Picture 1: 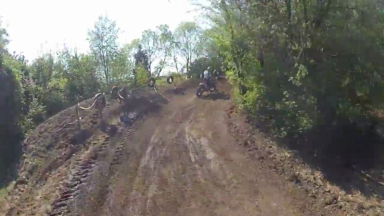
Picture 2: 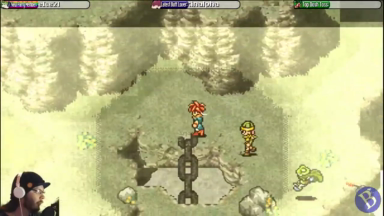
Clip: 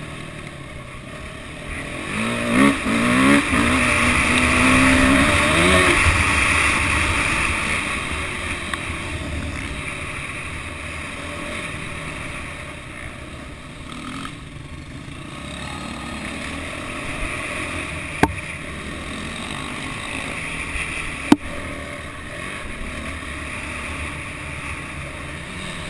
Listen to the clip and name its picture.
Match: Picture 1